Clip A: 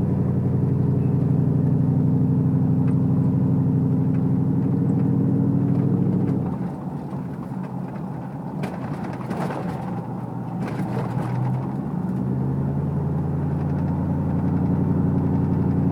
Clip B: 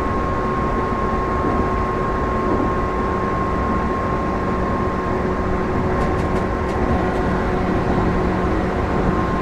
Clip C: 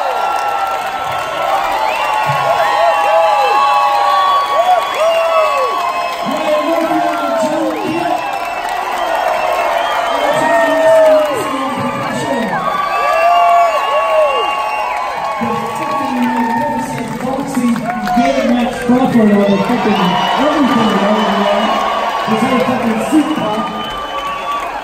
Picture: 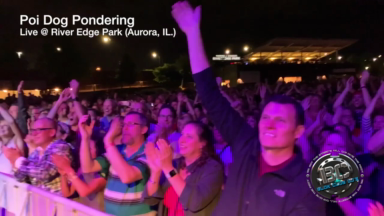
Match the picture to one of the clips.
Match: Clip C